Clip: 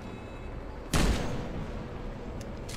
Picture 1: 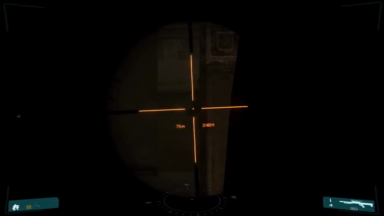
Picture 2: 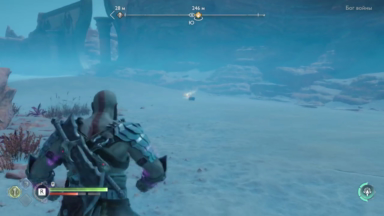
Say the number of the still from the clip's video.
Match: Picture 1